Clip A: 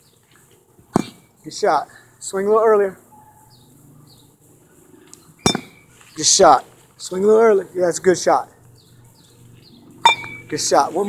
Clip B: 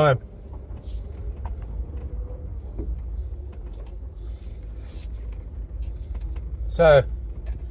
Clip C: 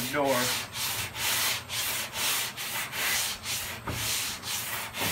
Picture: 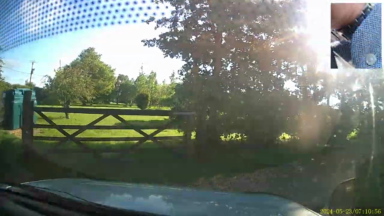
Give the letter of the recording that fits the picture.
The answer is B